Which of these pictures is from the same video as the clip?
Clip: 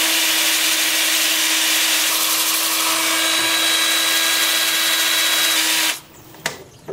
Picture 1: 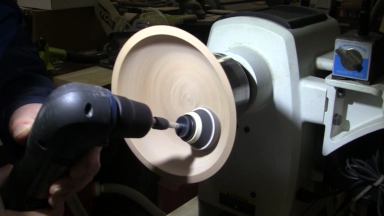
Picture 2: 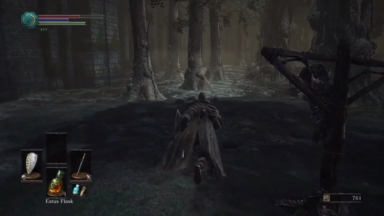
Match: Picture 1